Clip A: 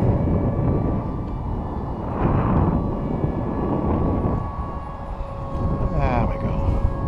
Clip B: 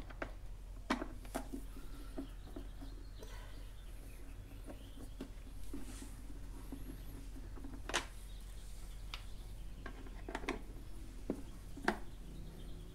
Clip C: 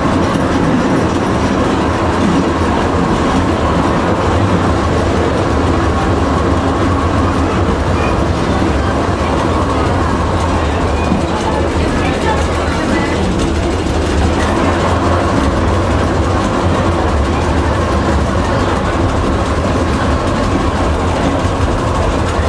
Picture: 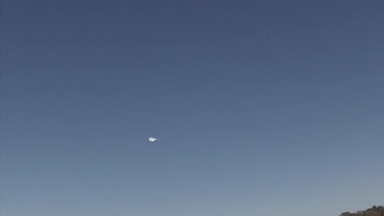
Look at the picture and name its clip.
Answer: A